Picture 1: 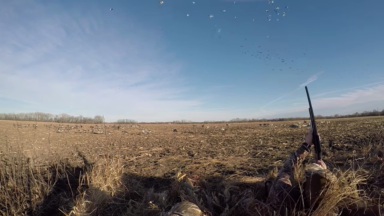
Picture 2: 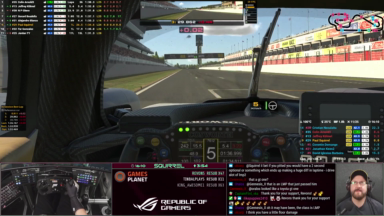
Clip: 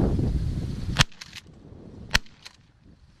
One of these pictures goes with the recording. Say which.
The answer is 1